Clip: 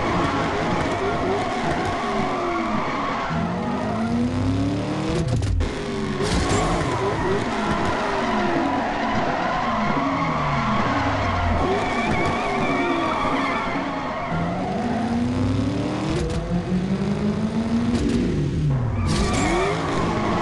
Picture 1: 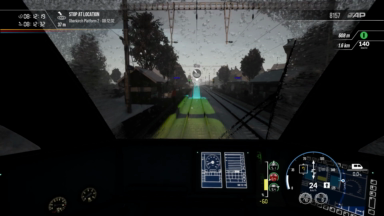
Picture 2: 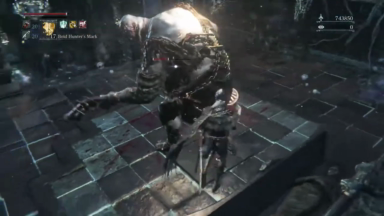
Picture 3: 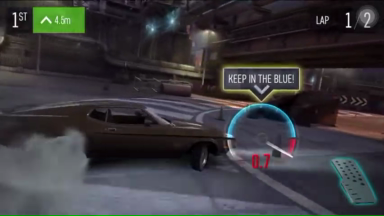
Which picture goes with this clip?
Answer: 3